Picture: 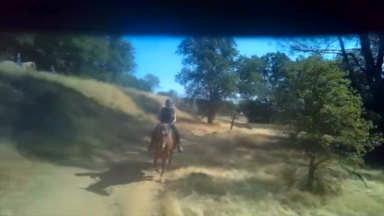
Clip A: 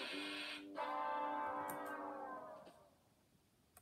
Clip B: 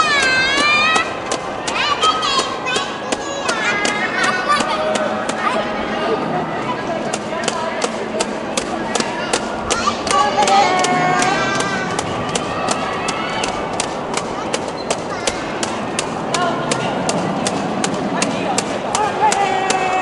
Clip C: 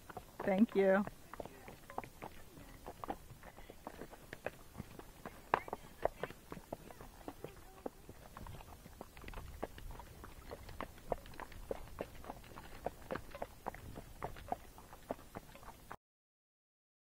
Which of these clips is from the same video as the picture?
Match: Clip C